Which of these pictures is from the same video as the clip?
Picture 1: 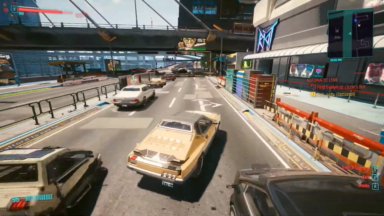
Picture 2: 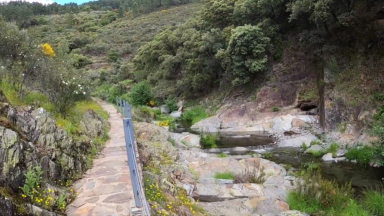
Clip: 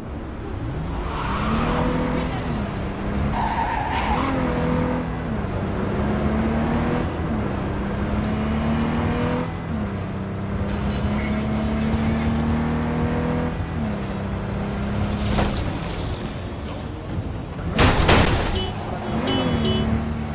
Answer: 1